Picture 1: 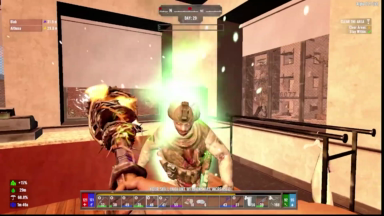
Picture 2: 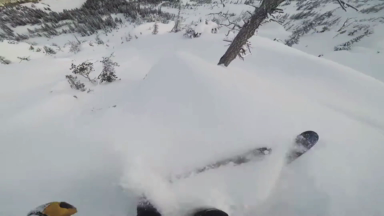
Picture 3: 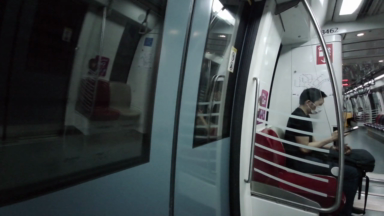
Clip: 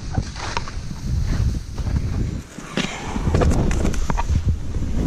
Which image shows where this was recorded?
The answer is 2